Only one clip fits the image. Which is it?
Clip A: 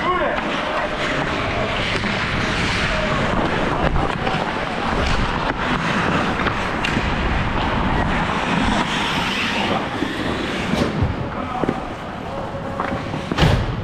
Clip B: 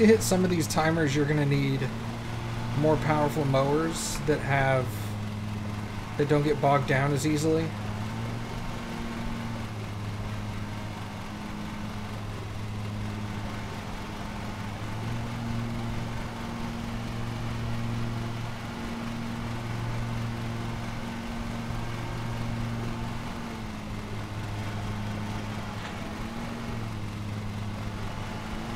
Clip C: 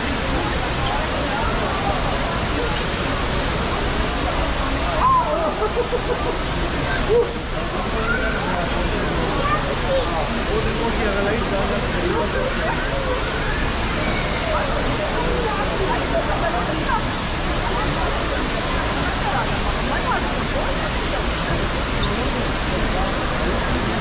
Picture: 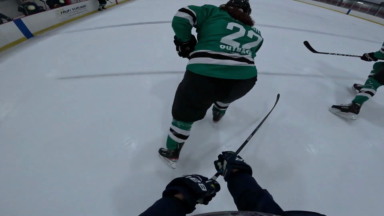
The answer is A